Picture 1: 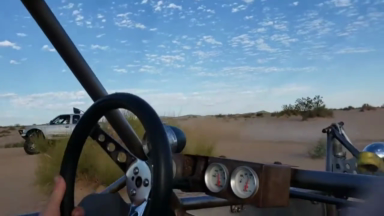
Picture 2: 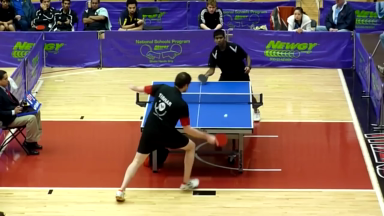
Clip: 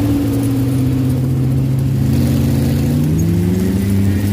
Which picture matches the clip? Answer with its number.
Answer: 1